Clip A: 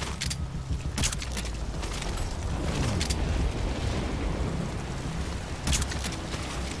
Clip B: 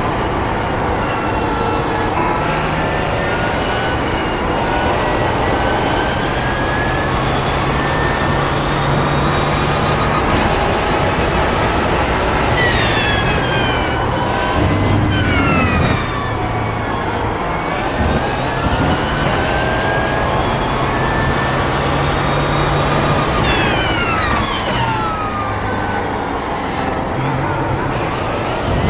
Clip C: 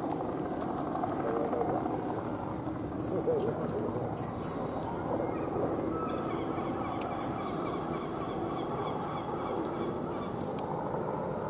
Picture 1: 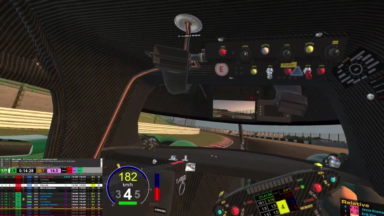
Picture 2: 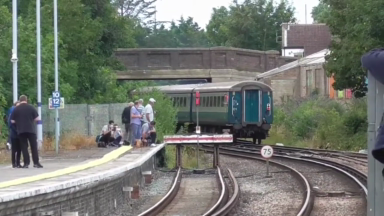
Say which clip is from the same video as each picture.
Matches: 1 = B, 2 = C